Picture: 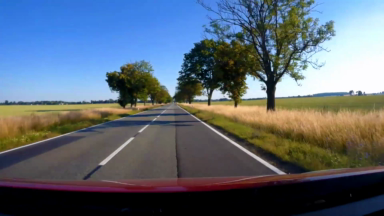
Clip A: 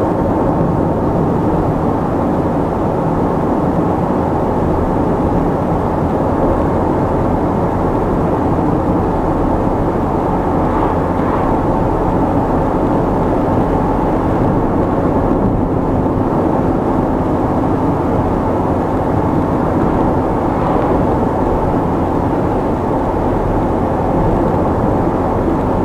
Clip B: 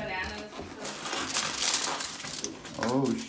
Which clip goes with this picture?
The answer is A